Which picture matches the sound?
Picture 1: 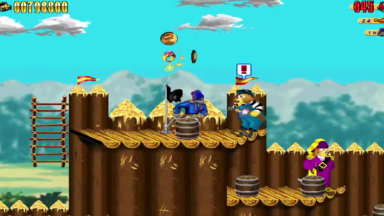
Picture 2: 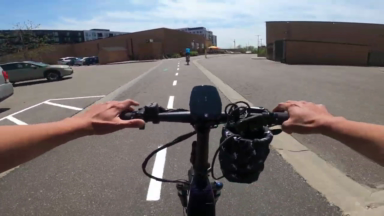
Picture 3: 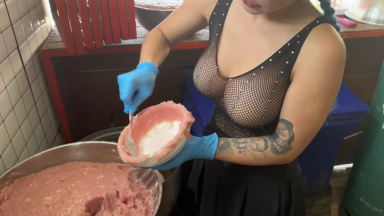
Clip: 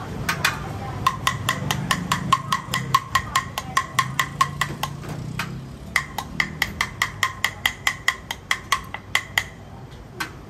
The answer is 3